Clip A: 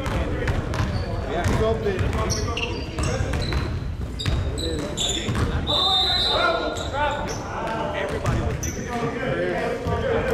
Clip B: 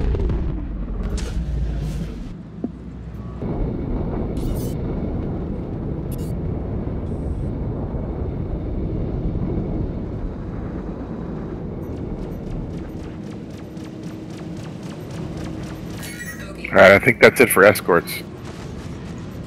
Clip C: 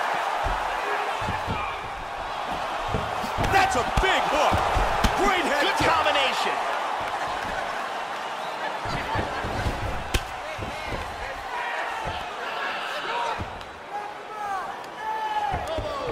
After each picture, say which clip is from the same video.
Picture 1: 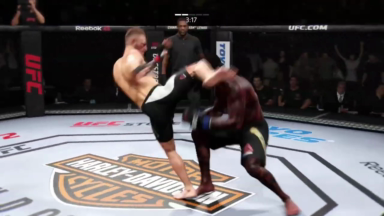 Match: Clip C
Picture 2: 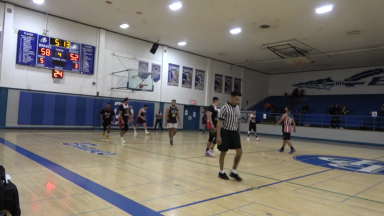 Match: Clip A